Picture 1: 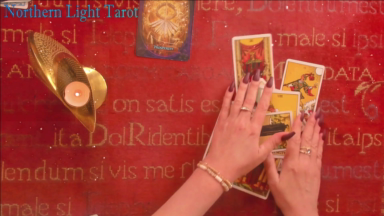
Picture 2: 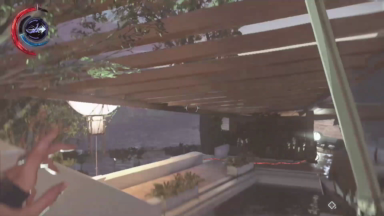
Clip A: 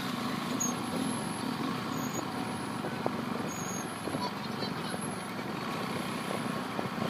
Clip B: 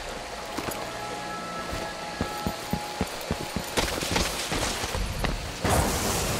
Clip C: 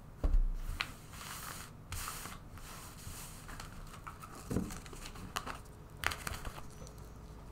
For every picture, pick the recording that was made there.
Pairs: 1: C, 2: B